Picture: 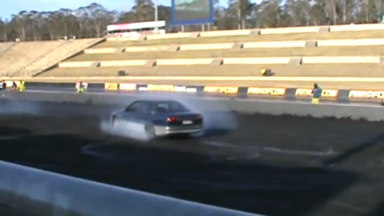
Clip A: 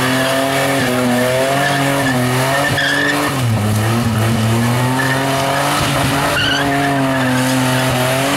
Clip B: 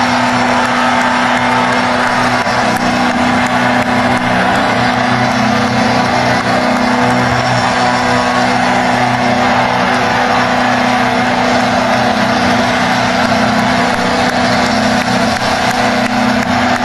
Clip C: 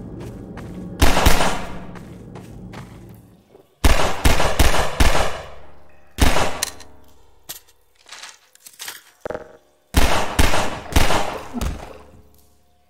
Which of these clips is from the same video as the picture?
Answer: A